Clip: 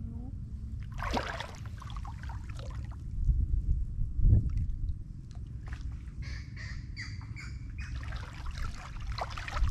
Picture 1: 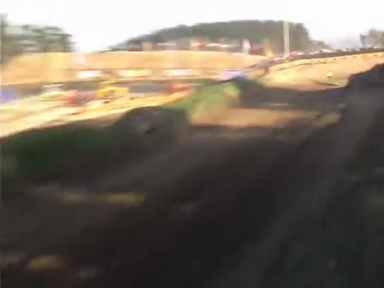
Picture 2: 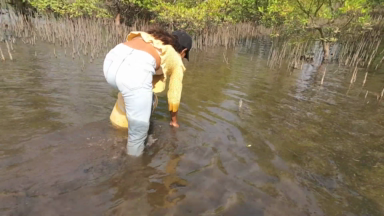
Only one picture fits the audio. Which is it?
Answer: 2